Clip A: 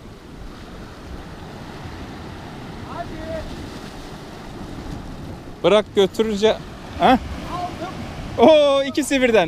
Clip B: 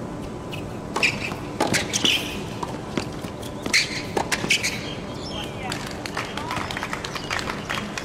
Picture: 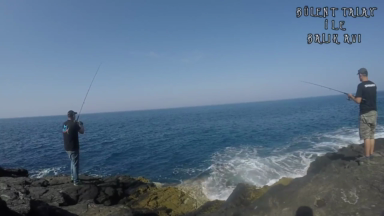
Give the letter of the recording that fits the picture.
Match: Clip A